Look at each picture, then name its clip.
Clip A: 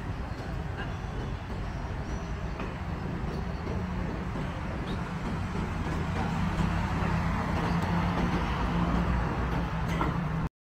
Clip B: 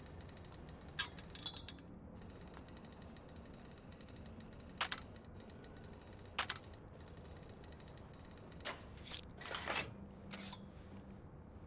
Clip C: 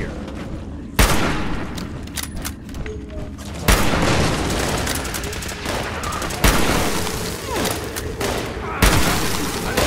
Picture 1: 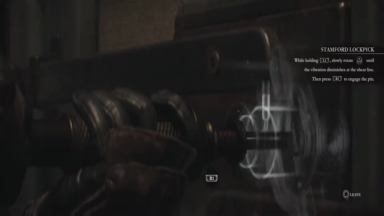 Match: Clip B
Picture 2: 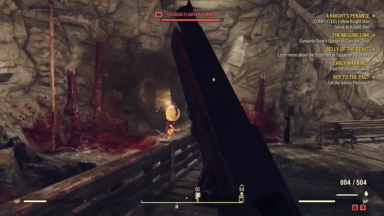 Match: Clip C